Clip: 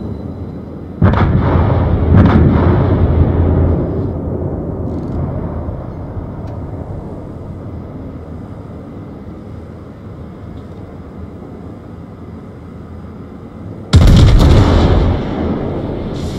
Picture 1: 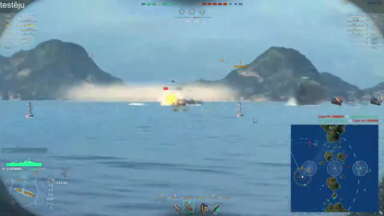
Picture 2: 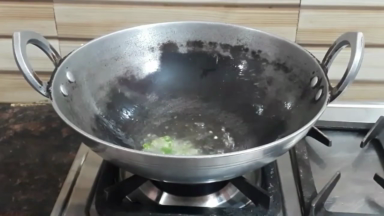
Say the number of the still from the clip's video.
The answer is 1